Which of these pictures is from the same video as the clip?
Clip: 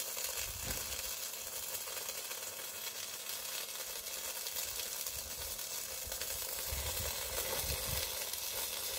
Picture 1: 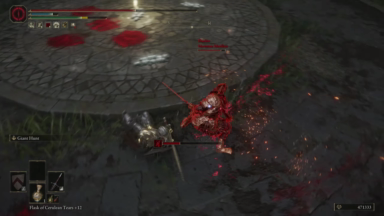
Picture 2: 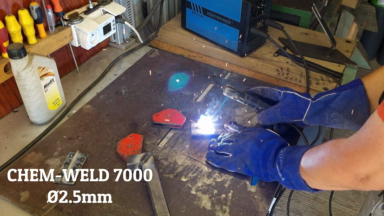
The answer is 2